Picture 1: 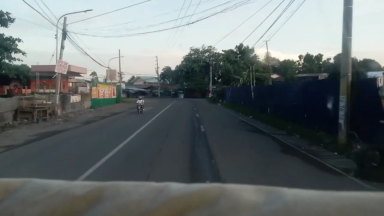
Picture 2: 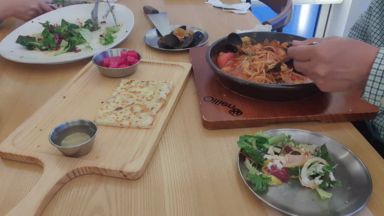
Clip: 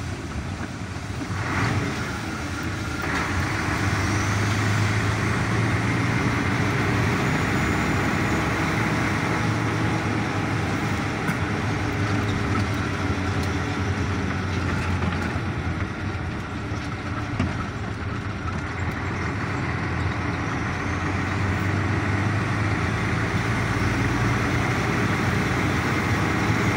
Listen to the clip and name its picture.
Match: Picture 1